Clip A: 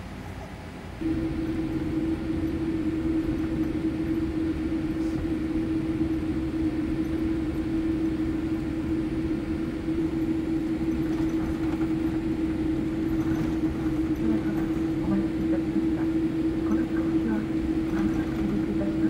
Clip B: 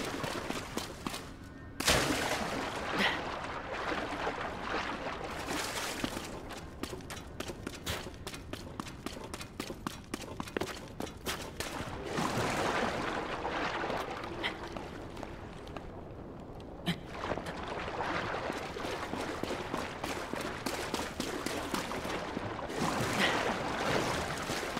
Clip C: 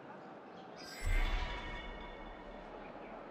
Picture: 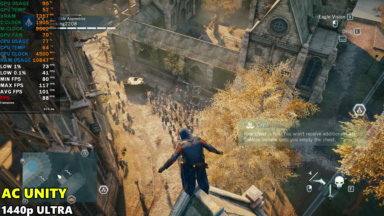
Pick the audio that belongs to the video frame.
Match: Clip C